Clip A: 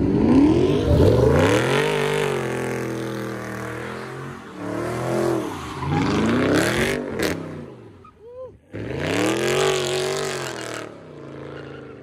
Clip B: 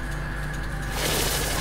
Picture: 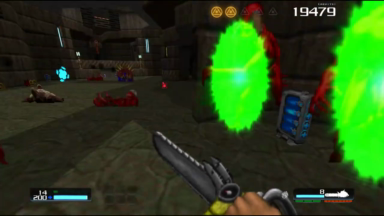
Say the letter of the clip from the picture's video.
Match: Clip B